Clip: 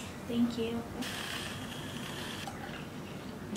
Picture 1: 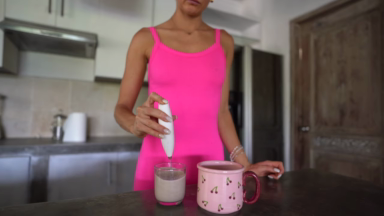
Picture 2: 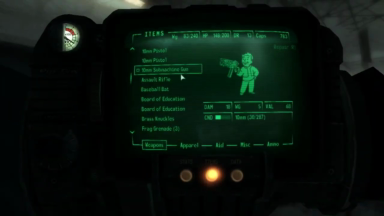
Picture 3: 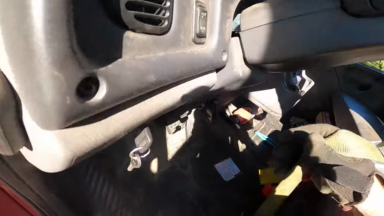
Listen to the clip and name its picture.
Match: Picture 1